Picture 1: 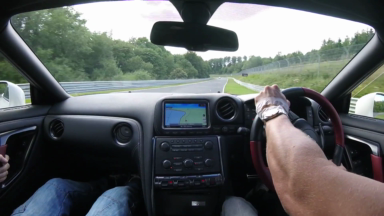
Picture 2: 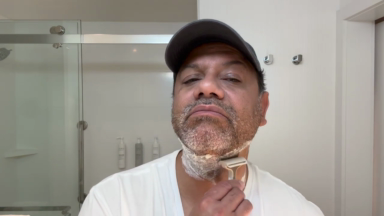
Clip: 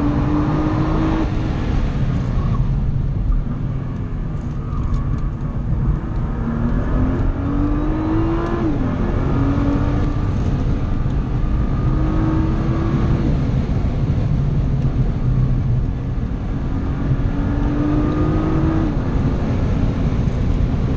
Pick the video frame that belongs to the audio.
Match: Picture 1